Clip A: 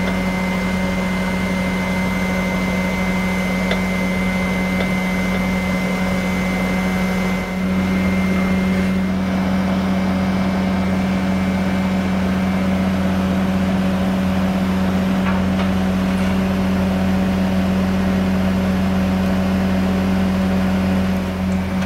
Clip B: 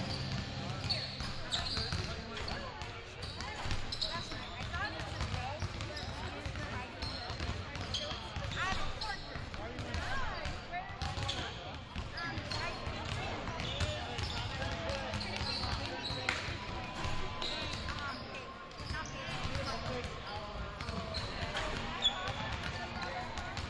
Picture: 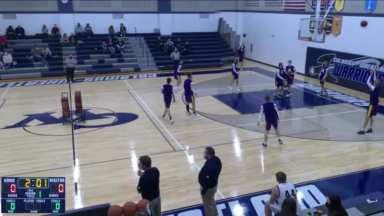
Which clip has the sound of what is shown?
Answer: B